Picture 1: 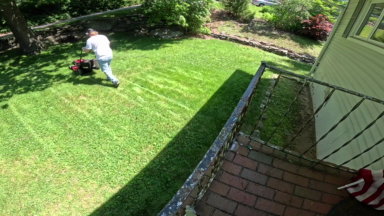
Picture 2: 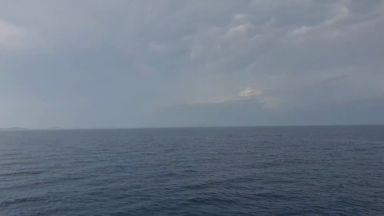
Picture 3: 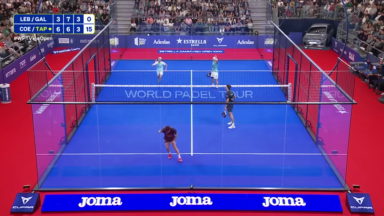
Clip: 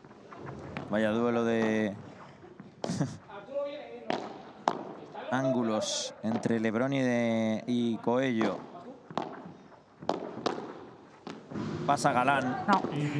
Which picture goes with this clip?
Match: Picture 3